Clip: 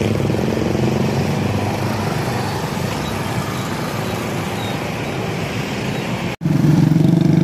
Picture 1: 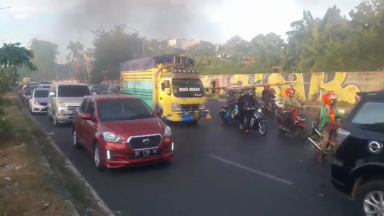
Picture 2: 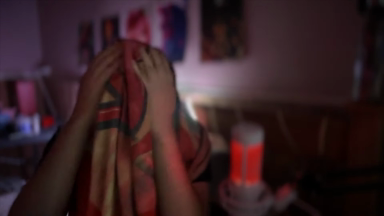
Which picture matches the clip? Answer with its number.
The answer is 1